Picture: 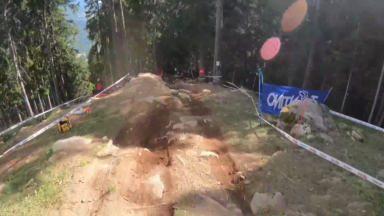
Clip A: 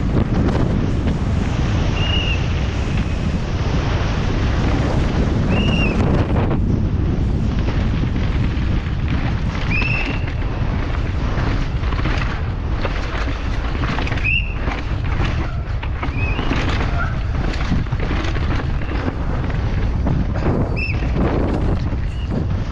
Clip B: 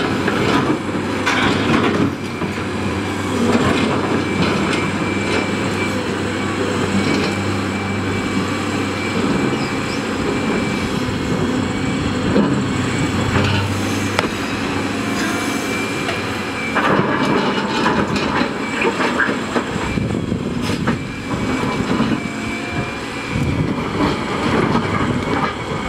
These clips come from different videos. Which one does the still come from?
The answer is A